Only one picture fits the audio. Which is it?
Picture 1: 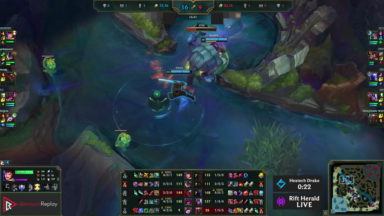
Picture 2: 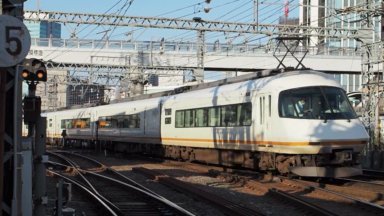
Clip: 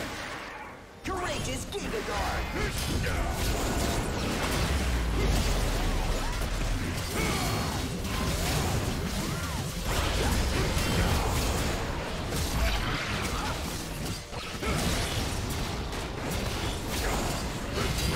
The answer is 1